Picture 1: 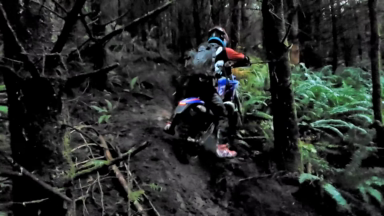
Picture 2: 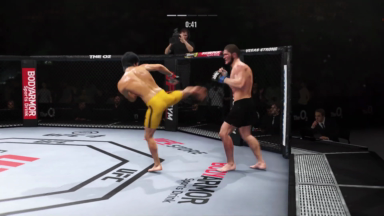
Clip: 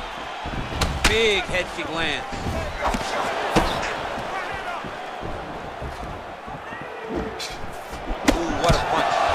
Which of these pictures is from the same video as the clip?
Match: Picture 2